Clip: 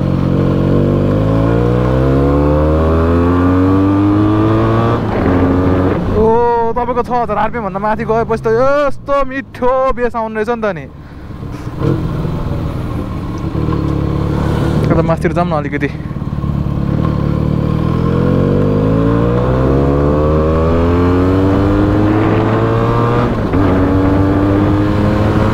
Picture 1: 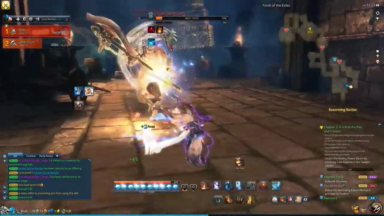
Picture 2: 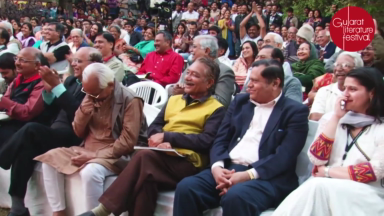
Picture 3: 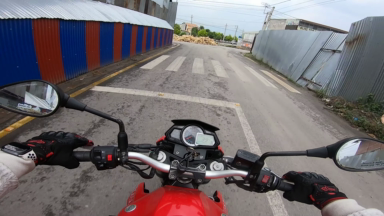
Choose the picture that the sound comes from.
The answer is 3